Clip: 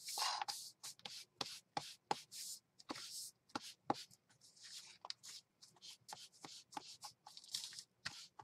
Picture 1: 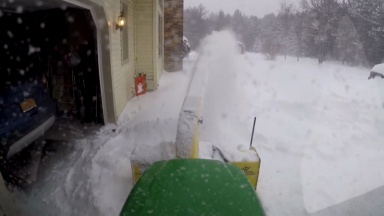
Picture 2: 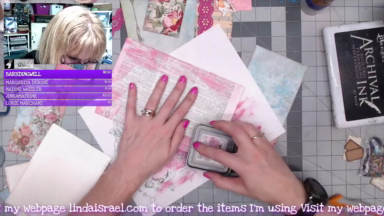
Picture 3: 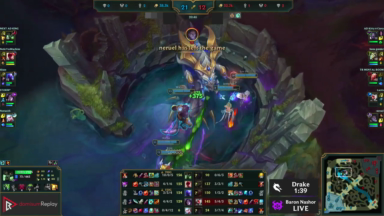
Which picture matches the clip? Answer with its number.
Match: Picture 2